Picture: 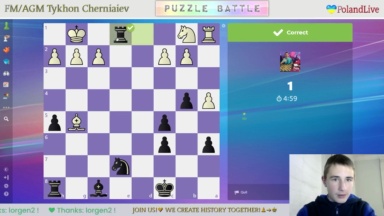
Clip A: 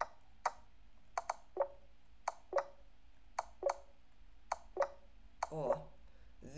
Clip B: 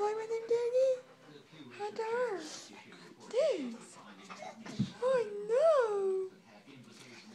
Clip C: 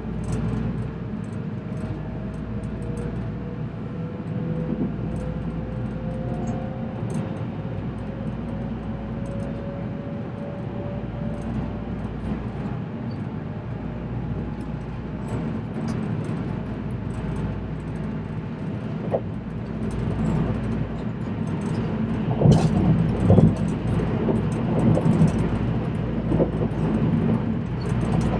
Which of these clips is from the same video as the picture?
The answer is A